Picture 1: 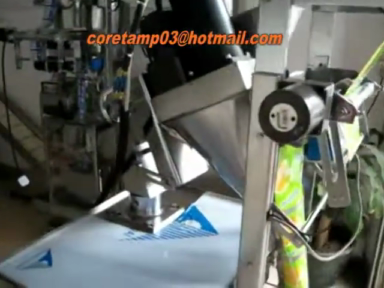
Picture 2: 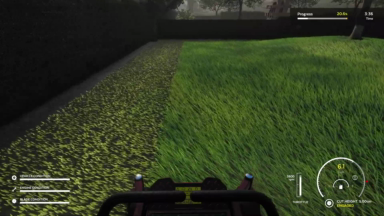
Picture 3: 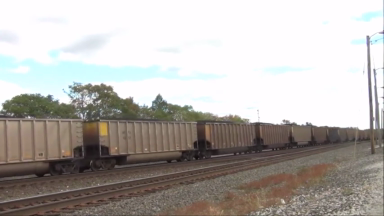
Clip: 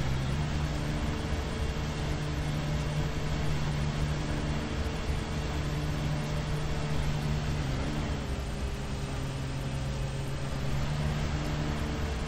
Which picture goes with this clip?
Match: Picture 2